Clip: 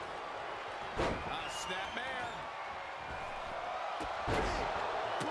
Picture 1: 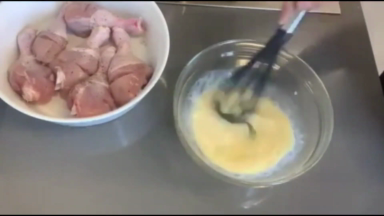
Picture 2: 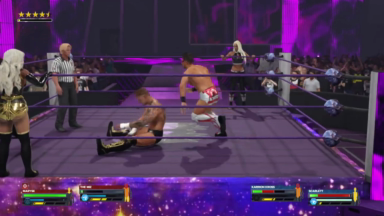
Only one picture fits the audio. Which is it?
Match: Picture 2